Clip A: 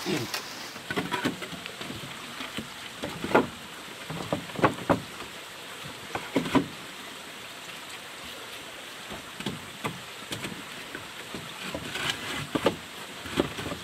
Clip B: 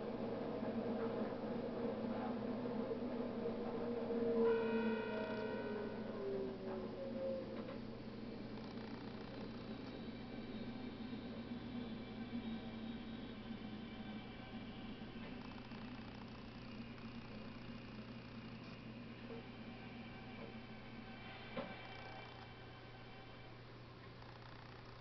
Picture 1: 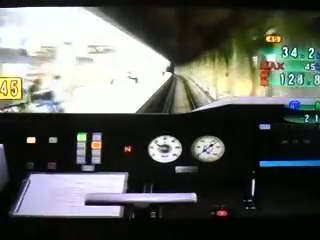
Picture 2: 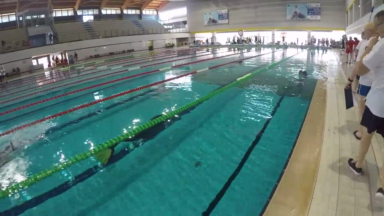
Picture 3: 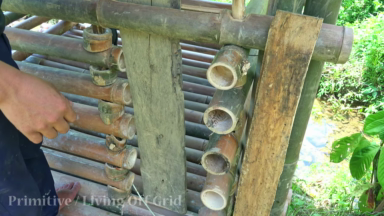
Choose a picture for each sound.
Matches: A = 3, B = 1